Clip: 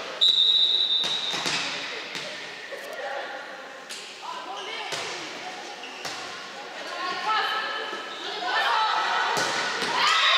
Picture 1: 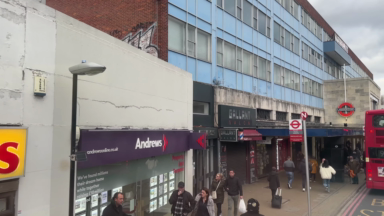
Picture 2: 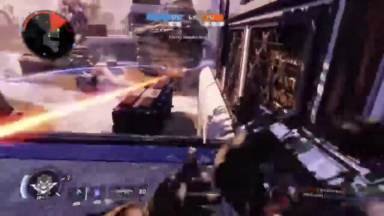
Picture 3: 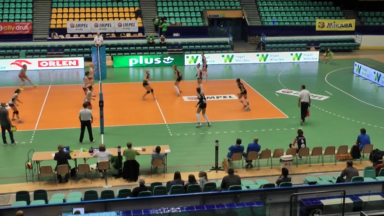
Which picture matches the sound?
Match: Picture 3